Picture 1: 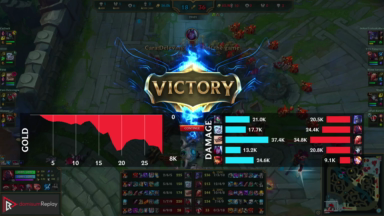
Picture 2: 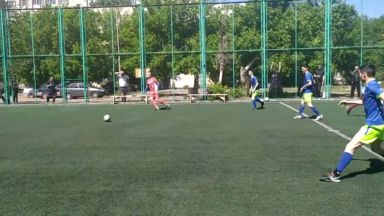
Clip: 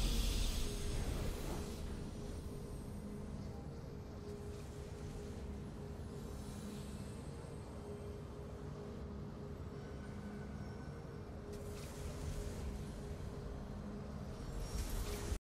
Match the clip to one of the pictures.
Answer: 1